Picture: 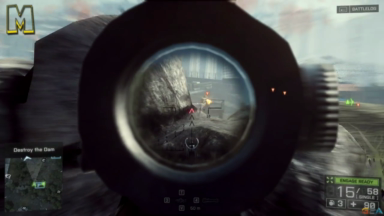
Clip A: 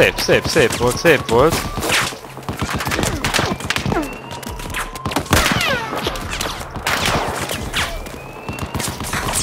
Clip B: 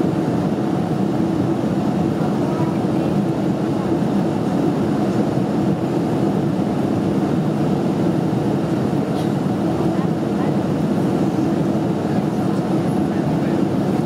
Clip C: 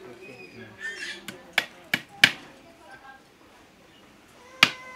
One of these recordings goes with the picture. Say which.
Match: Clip A